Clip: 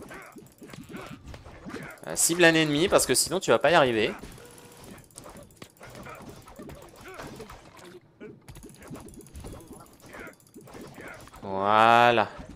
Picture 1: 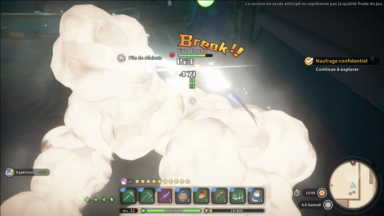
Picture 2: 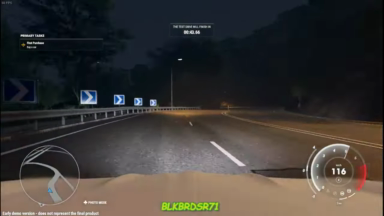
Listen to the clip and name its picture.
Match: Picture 1